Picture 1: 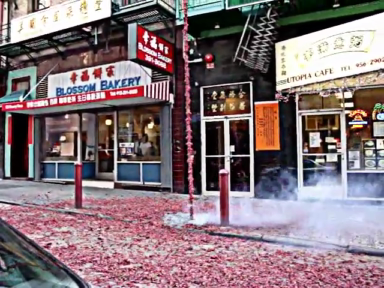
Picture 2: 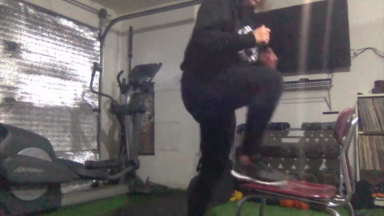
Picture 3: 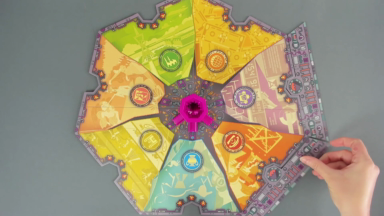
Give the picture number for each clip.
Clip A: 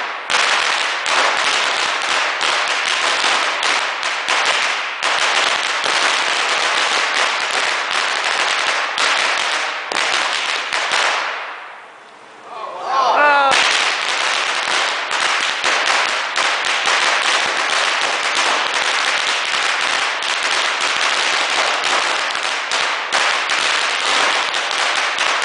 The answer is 1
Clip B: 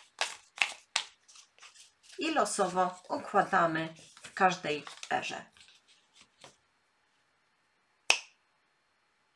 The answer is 3